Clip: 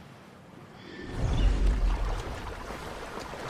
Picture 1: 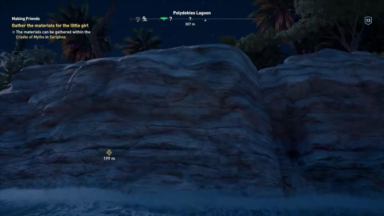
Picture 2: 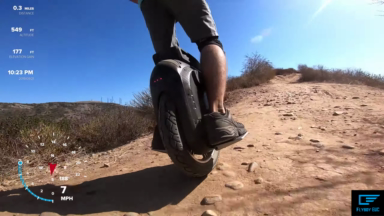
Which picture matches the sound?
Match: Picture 1